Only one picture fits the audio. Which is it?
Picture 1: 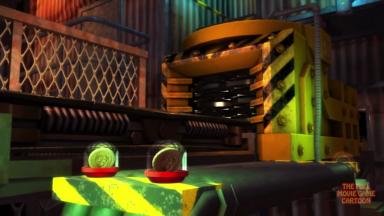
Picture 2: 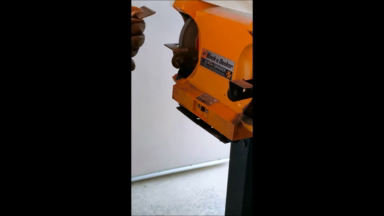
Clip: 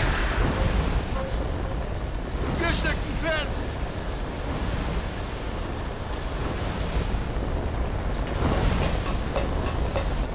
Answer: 1